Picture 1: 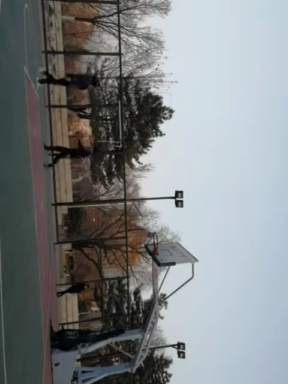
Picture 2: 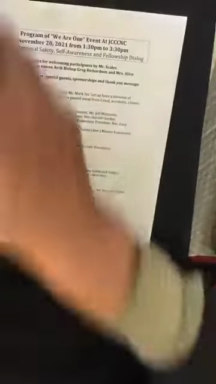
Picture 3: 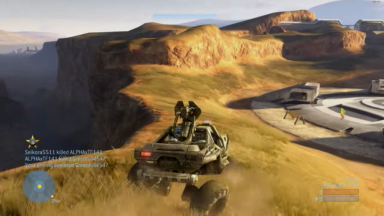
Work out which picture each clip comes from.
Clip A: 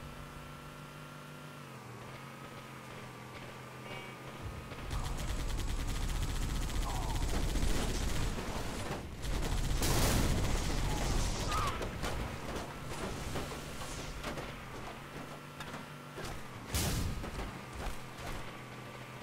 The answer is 3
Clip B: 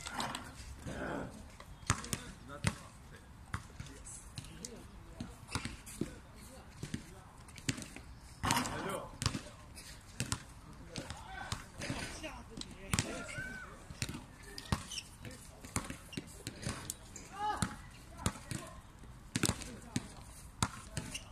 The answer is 1